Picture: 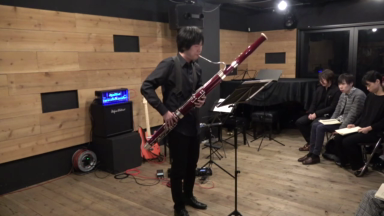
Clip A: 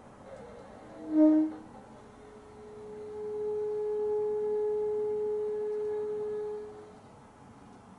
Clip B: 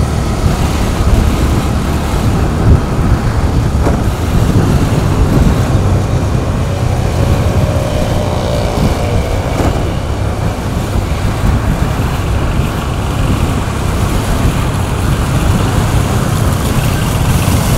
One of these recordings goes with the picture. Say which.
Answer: A